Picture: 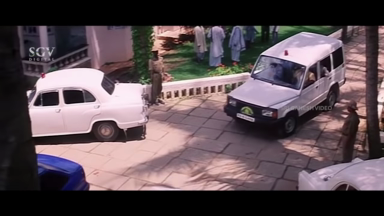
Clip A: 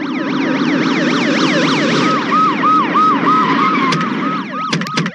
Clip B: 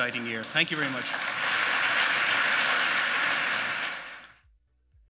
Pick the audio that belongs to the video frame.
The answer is A